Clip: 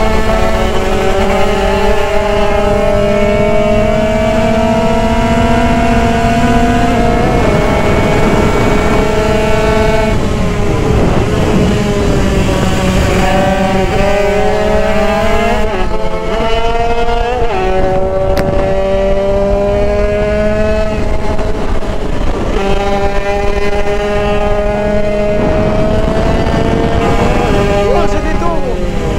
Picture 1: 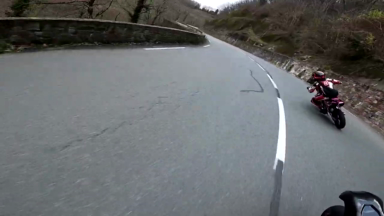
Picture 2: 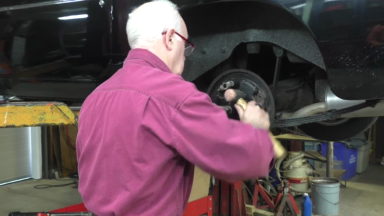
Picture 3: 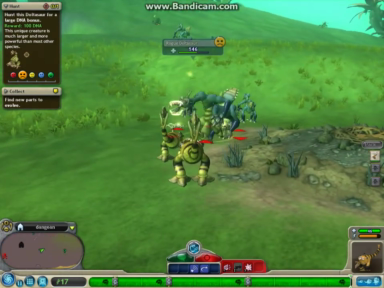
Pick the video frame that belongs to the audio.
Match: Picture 1